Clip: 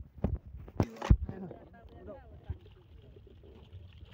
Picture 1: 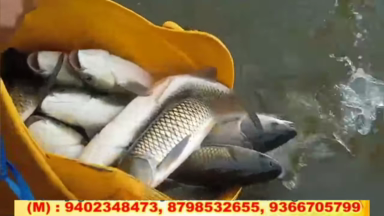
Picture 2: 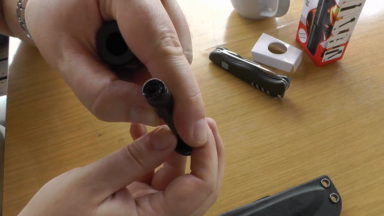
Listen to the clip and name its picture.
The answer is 1